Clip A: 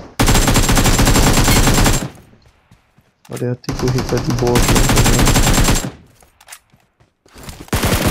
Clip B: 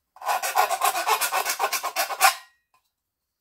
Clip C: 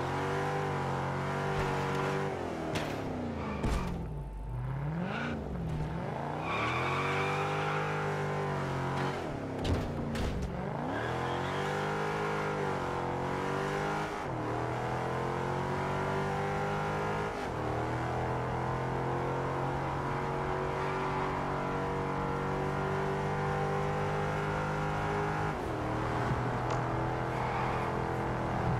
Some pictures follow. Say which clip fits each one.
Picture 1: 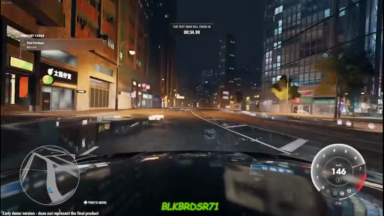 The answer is C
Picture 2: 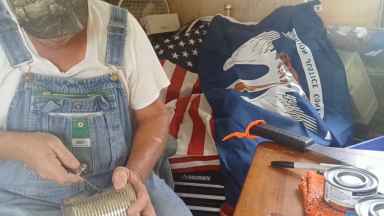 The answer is B